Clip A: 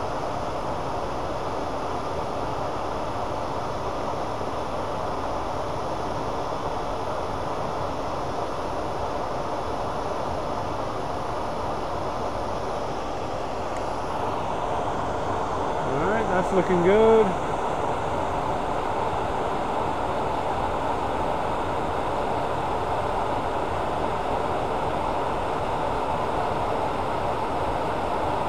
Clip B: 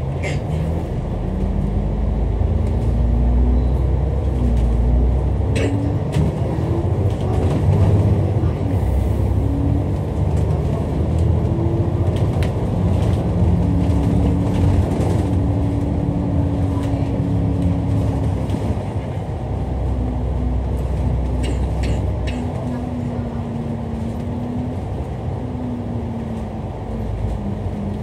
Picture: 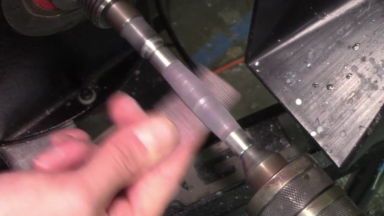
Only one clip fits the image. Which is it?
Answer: A